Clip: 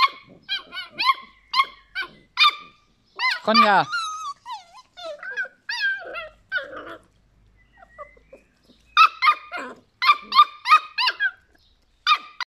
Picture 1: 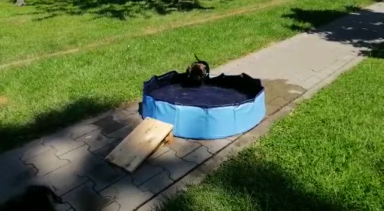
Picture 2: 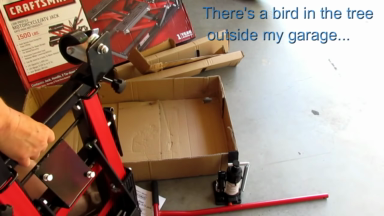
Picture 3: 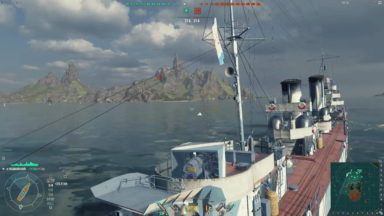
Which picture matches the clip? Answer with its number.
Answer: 1